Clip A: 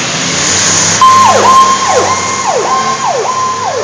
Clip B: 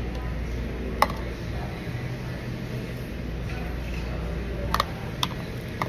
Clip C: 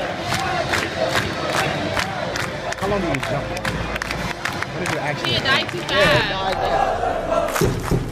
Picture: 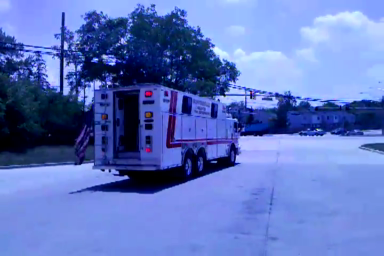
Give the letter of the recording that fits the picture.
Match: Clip A